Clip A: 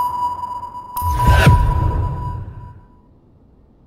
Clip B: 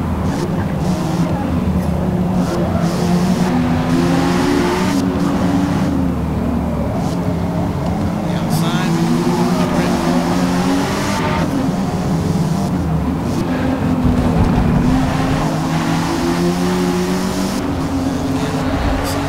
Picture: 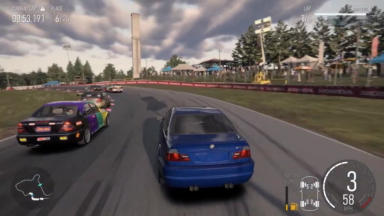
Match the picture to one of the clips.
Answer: B